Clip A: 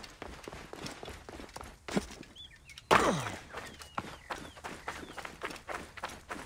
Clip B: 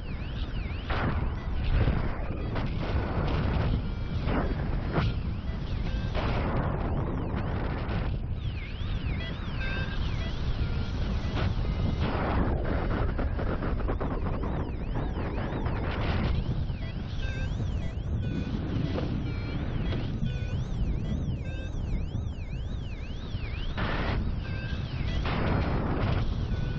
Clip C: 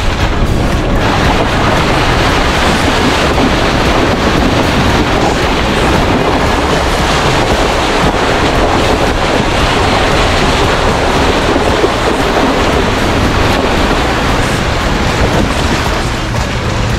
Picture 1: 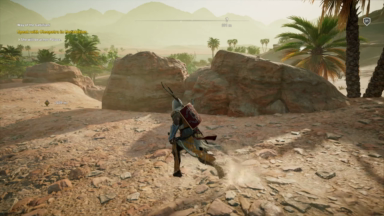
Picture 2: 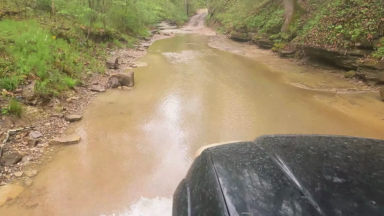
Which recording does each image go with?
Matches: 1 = A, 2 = C